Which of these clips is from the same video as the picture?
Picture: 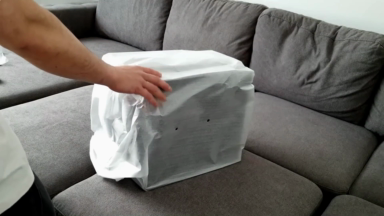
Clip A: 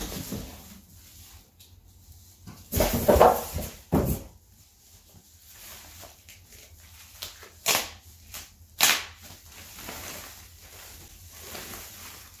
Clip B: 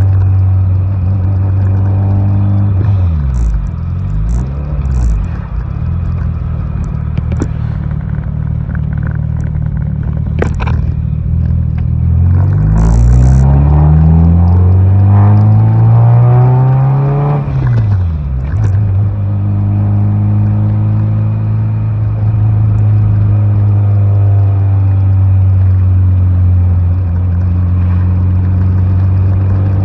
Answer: A